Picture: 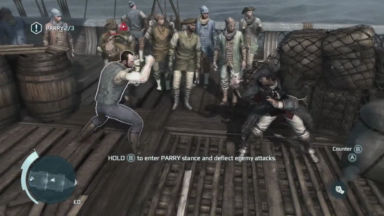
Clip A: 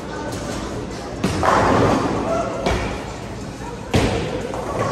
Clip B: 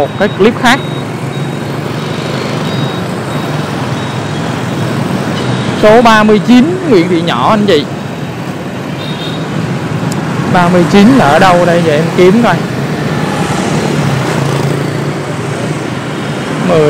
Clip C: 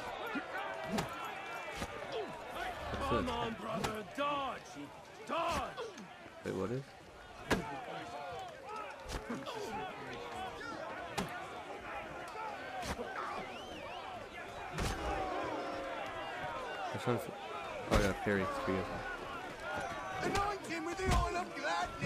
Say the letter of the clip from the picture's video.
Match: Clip C